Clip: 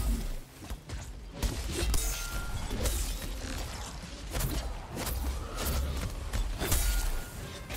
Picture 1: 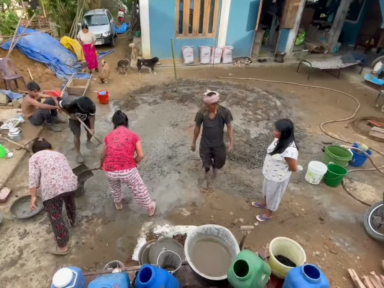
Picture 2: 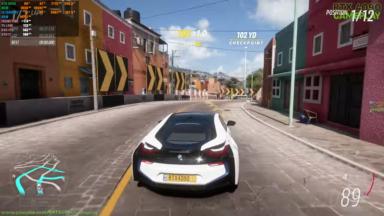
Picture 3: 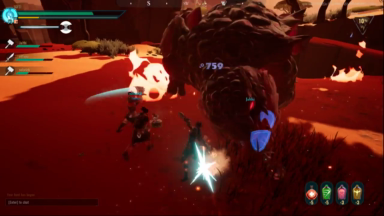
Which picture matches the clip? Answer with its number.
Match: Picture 3